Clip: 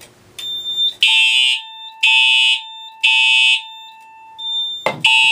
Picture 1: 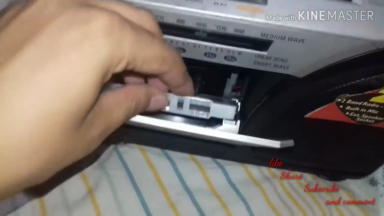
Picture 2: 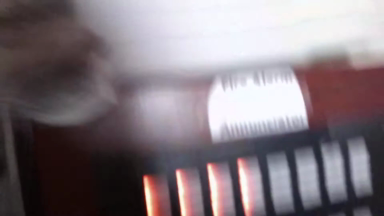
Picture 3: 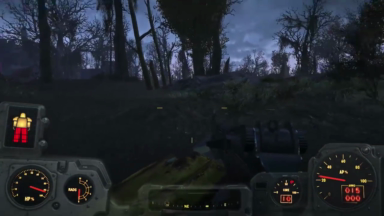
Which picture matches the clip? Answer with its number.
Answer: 2